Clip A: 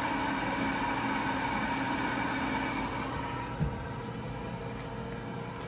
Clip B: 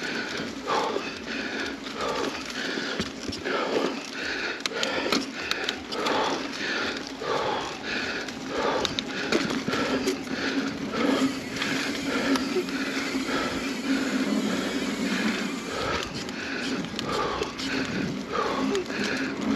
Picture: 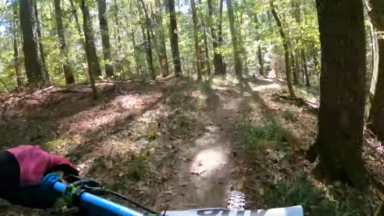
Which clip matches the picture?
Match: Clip B